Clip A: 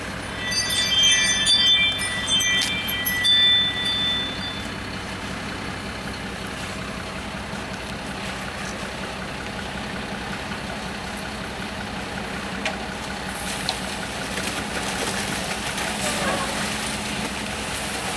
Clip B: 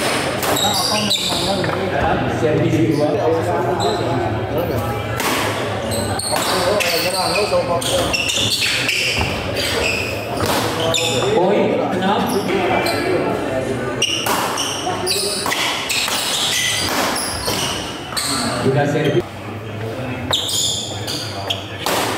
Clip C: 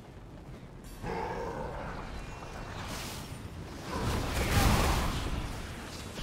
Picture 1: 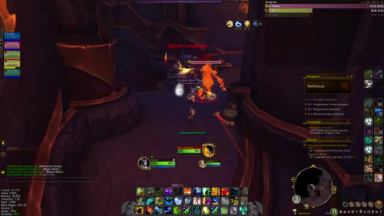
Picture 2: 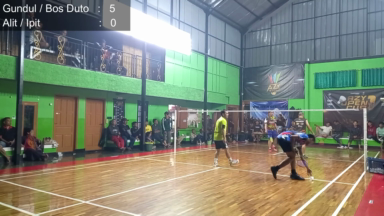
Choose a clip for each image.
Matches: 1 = C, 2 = B